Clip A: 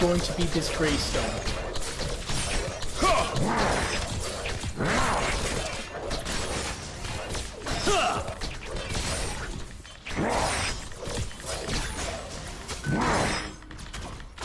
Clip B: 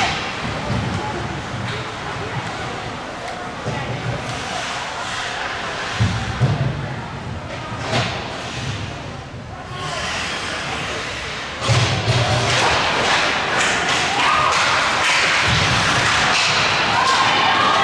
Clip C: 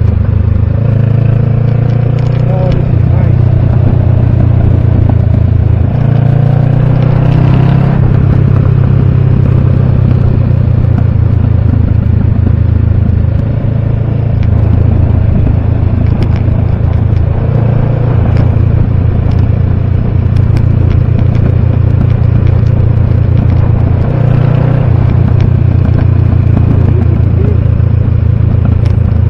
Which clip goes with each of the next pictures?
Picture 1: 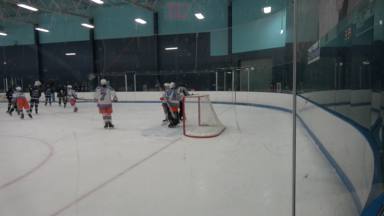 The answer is B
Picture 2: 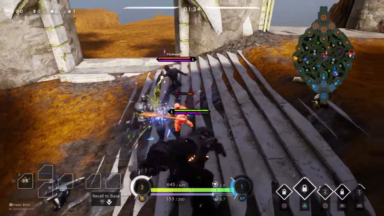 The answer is A